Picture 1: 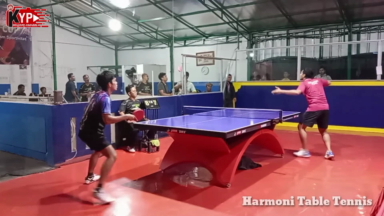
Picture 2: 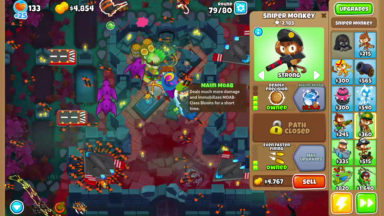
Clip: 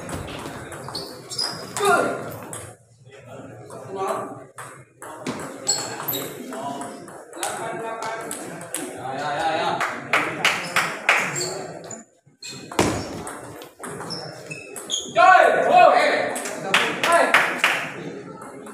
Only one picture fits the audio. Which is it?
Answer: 1